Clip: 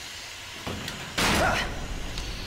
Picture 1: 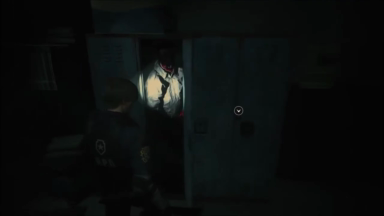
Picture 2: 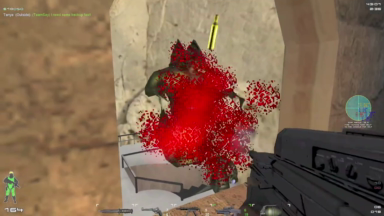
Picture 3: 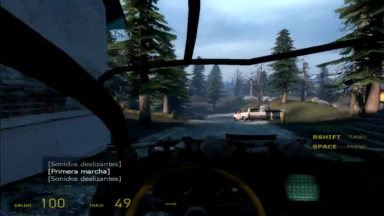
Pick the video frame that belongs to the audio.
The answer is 1